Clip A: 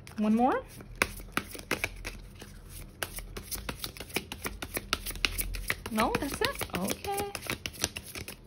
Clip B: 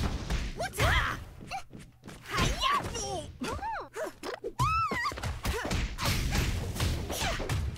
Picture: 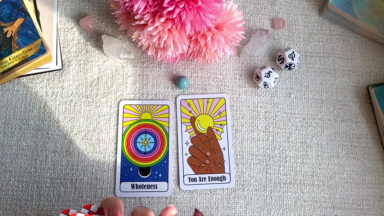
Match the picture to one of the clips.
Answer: A